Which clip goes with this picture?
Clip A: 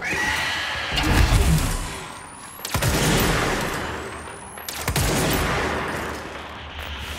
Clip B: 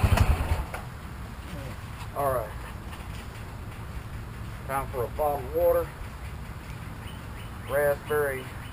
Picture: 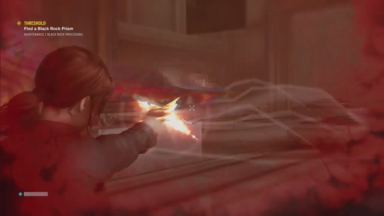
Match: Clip A